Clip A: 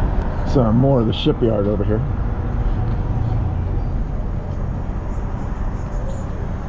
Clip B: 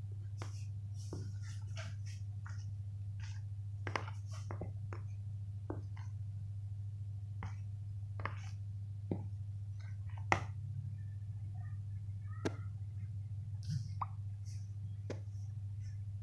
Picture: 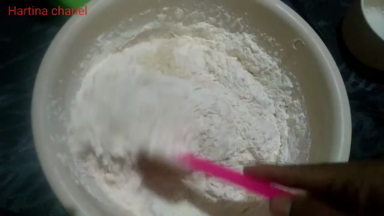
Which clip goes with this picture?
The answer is B